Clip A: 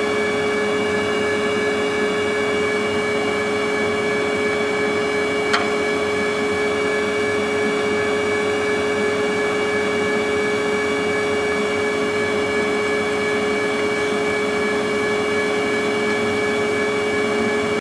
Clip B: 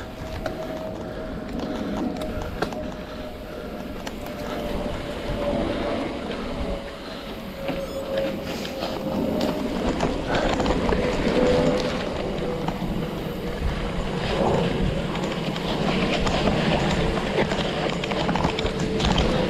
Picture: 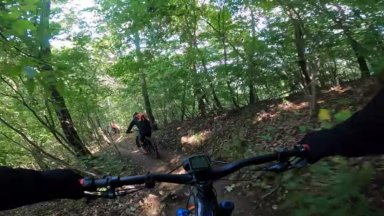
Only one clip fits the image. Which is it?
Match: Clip B